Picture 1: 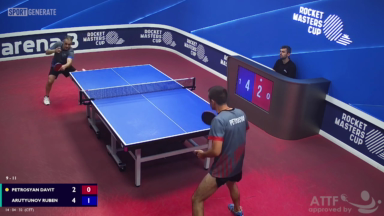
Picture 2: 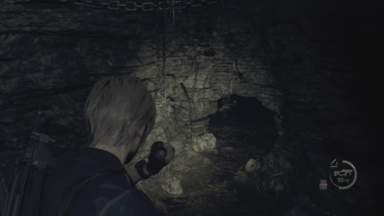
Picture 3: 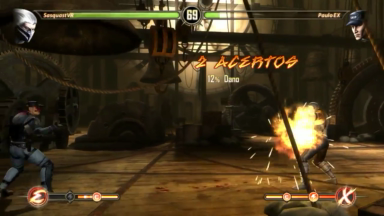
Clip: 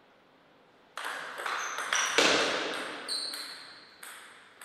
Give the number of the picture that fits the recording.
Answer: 1